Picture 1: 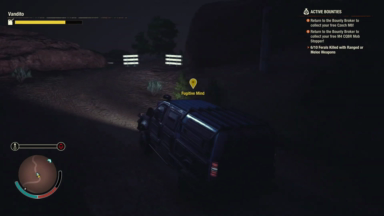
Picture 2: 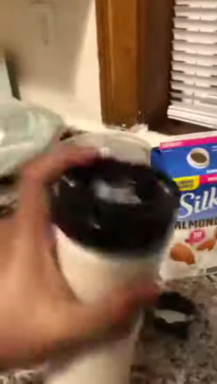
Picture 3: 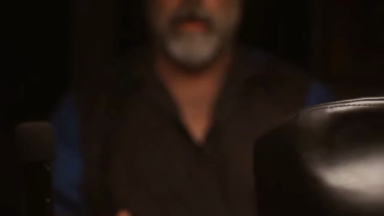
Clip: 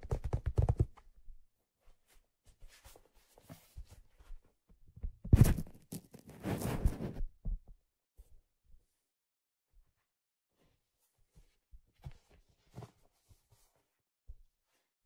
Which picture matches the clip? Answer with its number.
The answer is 3